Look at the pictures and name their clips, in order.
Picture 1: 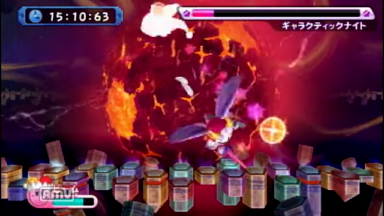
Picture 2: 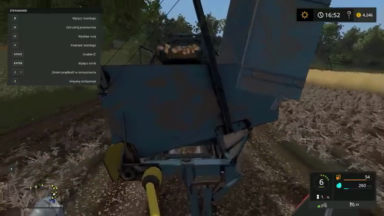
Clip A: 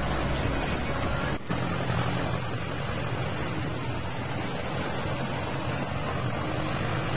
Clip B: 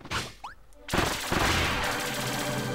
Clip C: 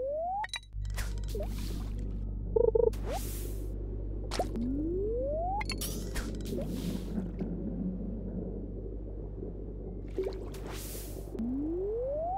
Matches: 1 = B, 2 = A